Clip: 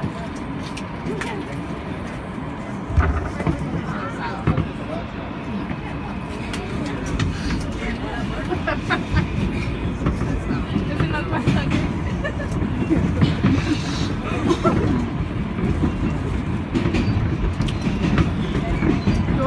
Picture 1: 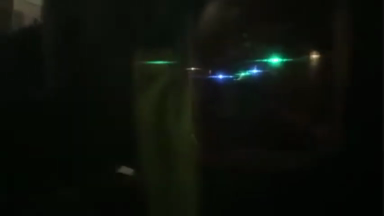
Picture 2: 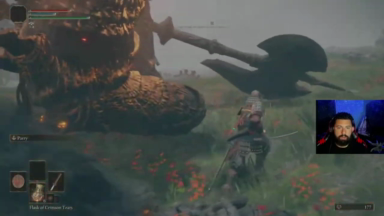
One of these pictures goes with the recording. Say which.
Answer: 1